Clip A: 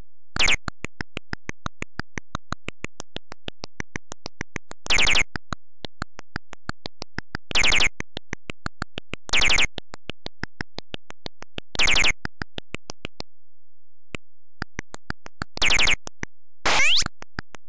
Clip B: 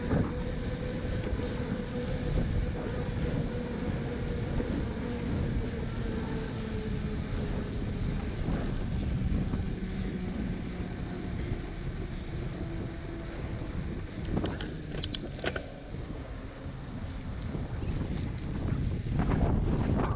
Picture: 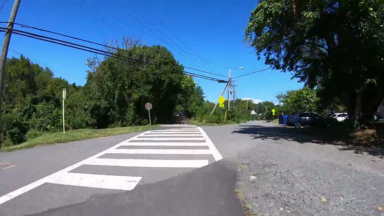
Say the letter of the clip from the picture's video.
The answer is B